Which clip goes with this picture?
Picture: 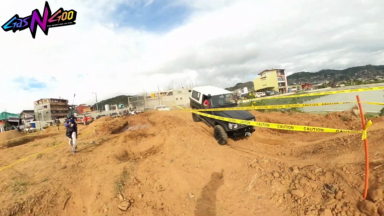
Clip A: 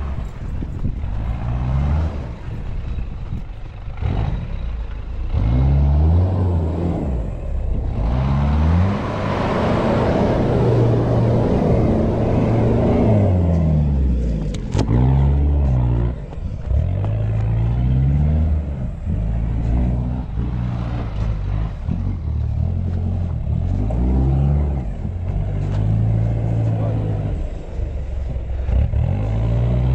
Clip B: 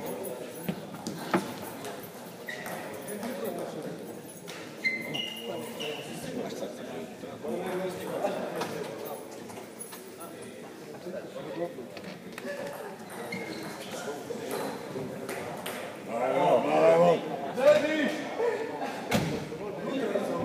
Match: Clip A